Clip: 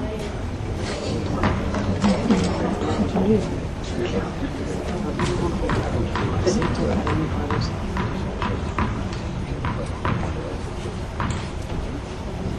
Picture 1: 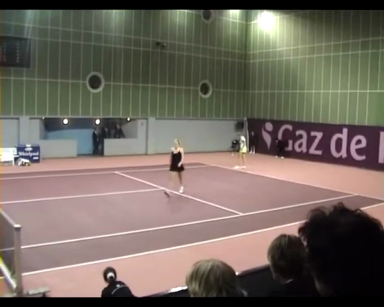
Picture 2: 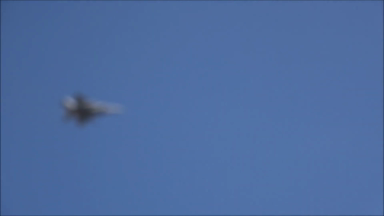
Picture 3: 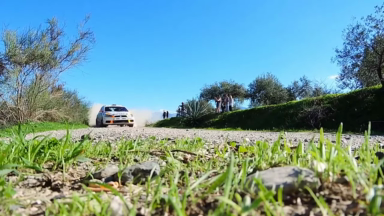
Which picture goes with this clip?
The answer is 1